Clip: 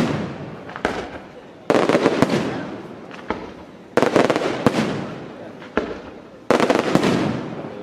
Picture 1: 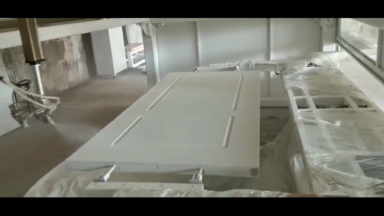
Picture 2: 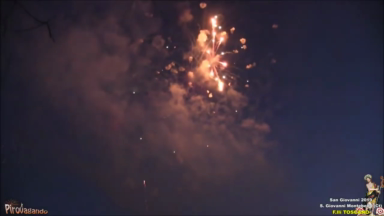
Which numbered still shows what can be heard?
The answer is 2